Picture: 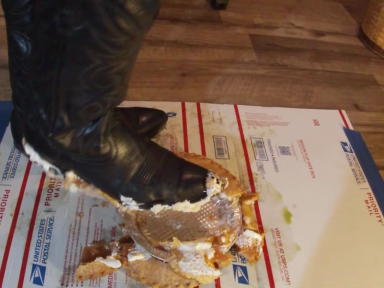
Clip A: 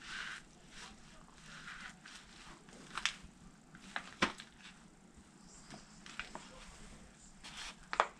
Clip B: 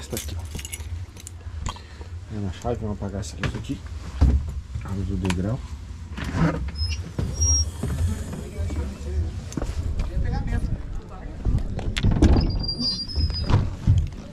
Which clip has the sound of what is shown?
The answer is A